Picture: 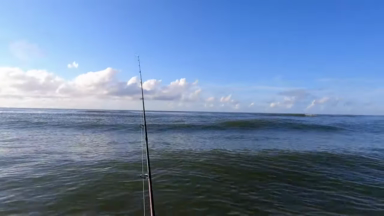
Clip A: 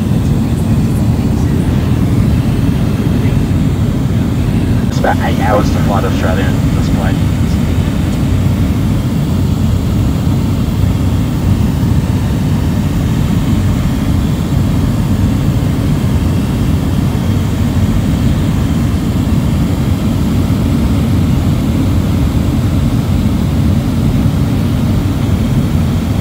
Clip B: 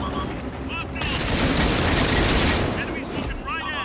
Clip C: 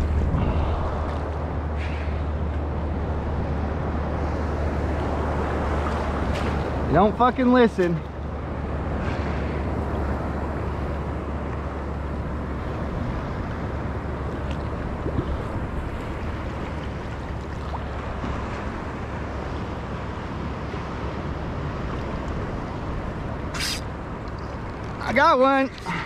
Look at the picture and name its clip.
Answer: C